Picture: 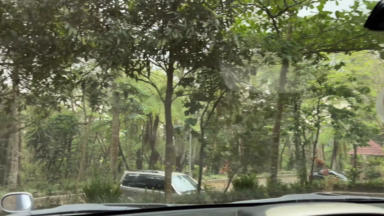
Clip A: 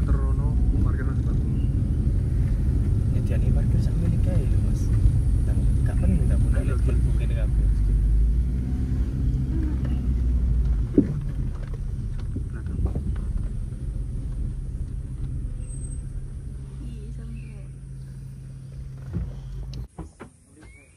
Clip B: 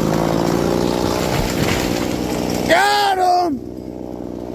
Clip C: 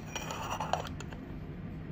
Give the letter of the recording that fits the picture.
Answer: A